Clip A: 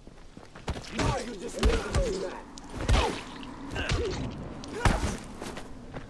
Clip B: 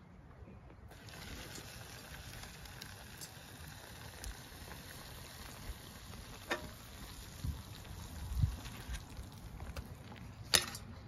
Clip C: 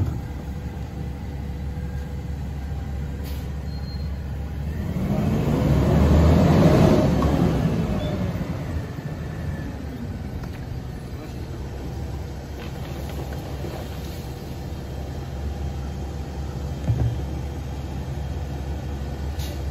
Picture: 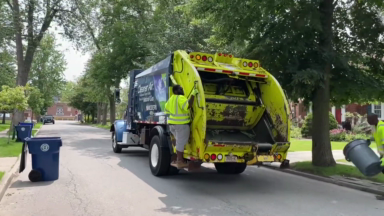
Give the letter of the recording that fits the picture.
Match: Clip C